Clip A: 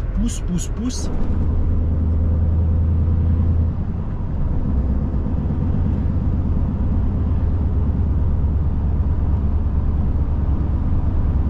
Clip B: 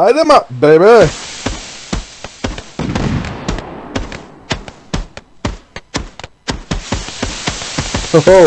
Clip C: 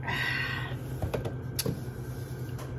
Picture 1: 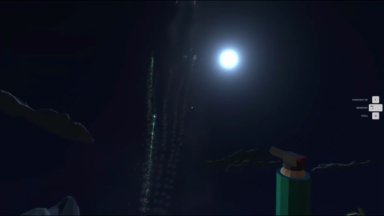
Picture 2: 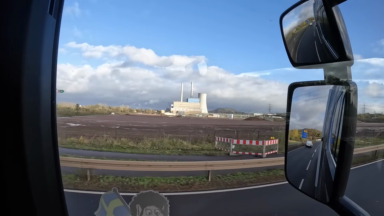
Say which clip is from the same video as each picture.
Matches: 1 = B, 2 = A